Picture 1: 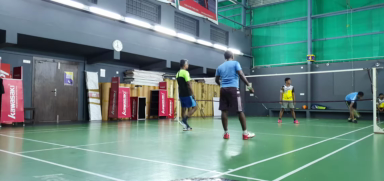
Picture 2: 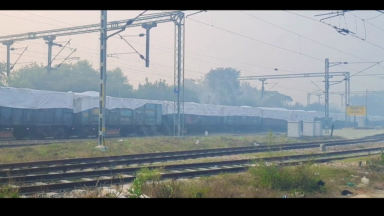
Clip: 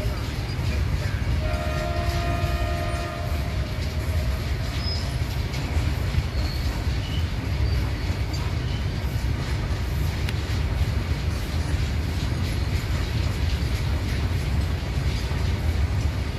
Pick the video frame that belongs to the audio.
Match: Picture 2